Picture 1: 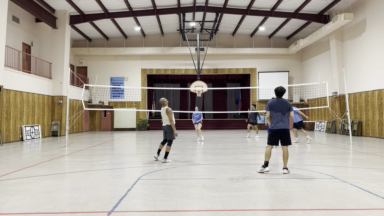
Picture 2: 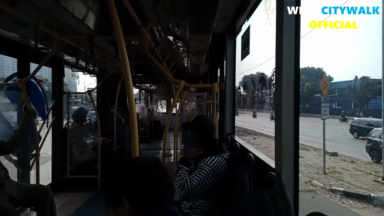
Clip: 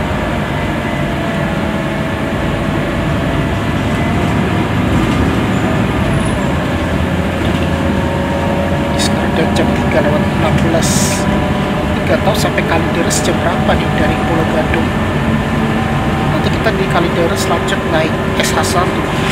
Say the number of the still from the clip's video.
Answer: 2